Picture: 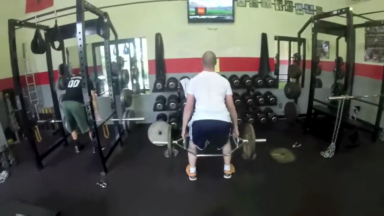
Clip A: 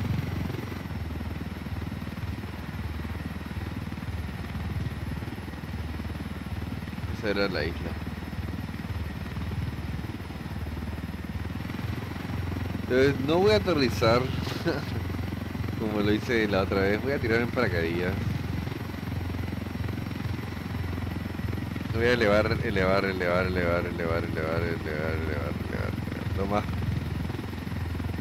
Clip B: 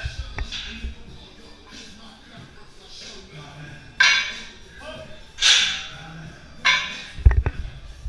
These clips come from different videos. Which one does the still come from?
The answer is B